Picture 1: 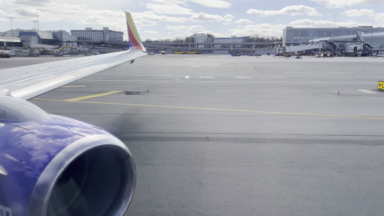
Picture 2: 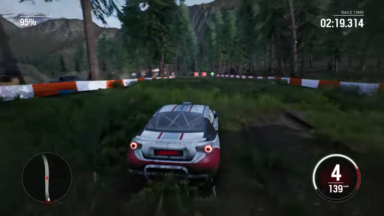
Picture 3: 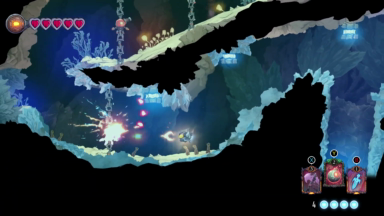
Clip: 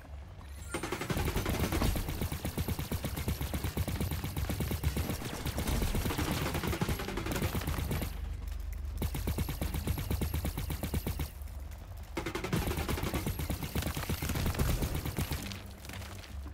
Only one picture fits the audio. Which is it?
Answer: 3